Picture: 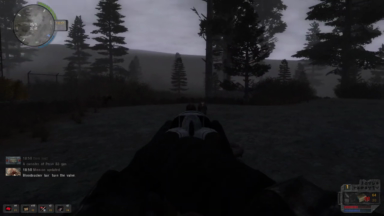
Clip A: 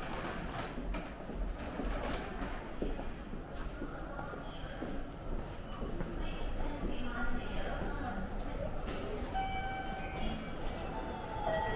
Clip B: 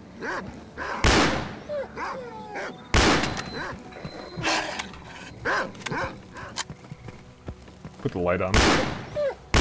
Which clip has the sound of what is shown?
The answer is B